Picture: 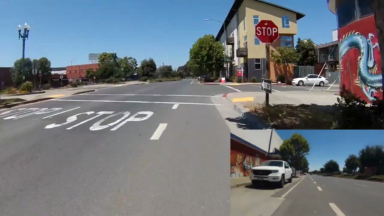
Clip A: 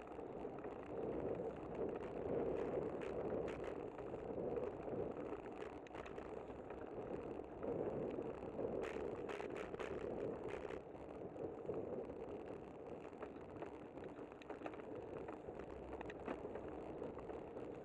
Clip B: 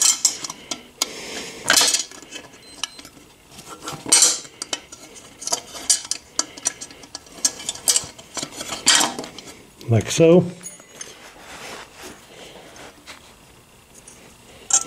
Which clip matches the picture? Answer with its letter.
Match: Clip A